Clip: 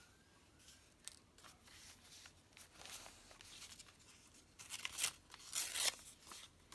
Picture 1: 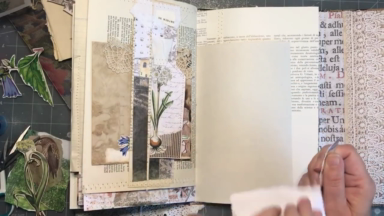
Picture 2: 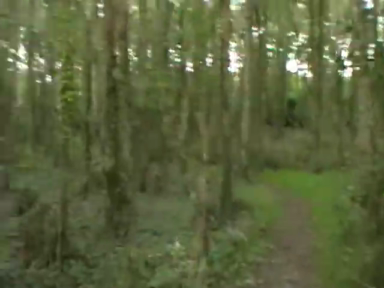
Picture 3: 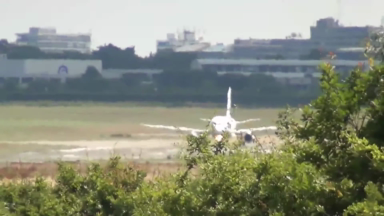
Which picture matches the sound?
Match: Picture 1